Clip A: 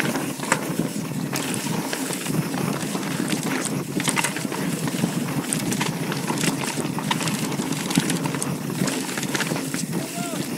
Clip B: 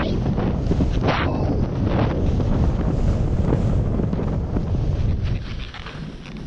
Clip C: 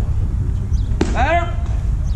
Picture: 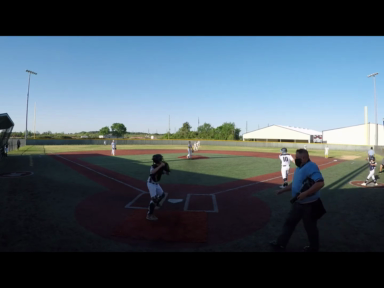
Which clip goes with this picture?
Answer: C